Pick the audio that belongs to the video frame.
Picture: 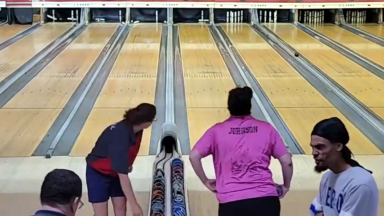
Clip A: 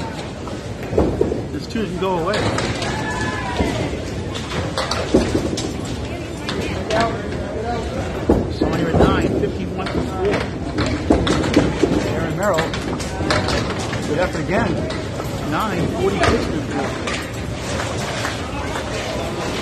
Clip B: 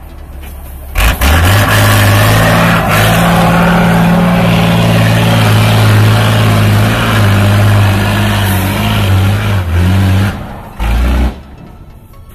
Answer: A